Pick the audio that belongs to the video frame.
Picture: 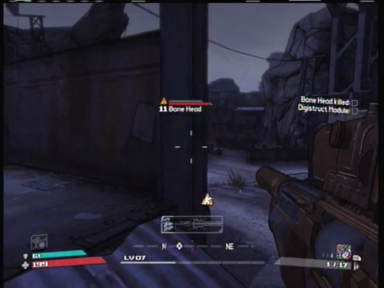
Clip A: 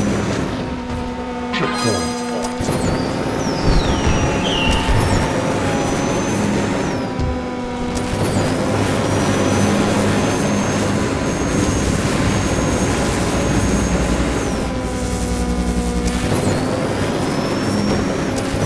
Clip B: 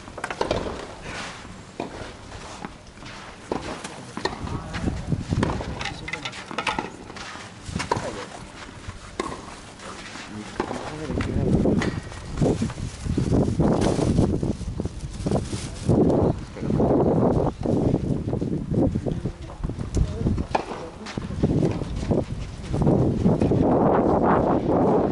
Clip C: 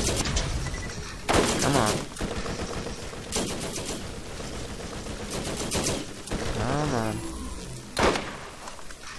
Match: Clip C